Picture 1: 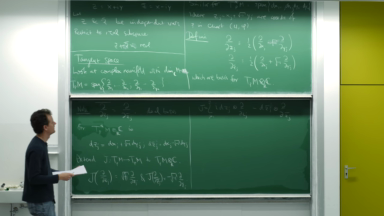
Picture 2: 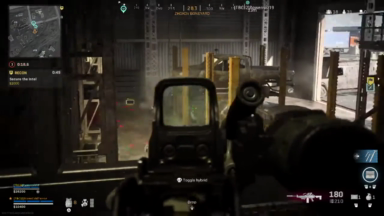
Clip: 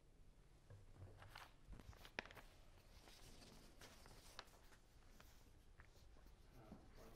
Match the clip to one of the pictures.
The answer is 1